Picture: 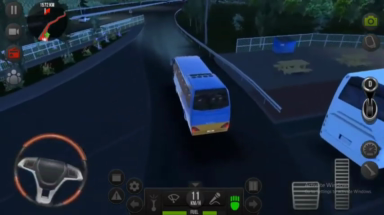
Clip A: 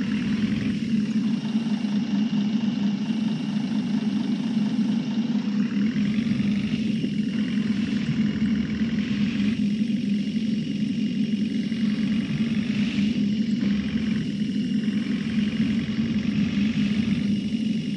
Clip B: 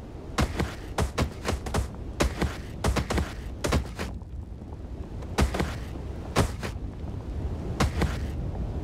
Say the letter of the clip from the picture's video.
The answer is A